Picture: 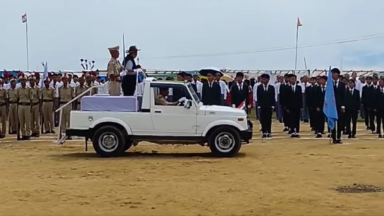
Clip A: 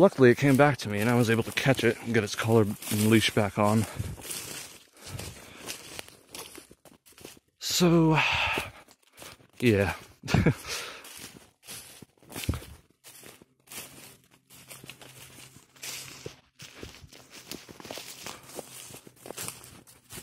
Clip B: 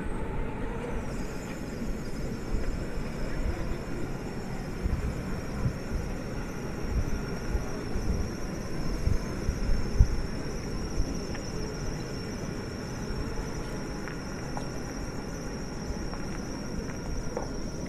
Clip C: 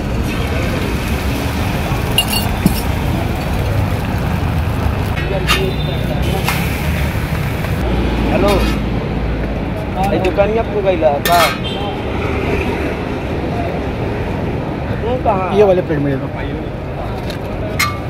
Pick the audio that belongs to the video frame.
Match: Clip B